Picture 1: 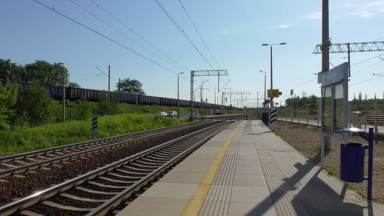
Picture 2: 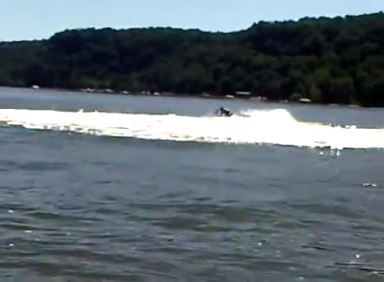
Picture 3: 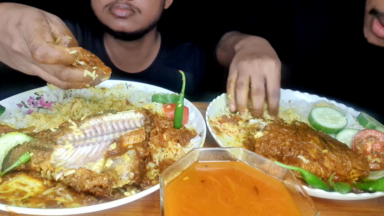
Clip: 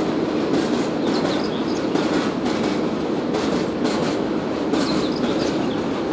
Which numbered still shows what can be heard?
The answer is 1